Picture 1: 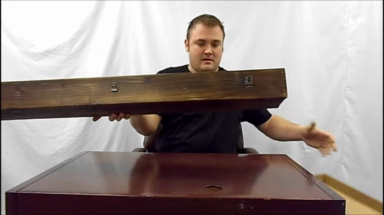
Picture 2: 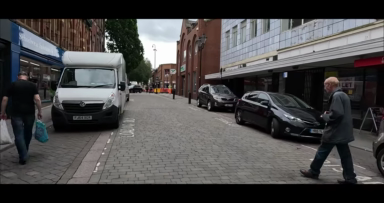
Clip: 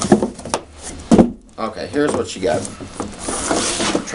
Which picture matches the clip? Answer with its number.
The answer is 1